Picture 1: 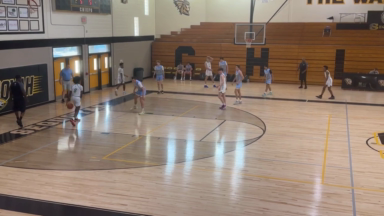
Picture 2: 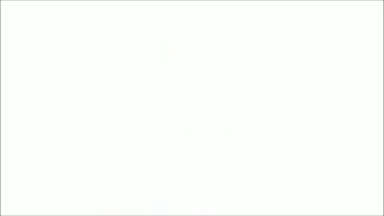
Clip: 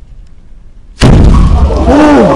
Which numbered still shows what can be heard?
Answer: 2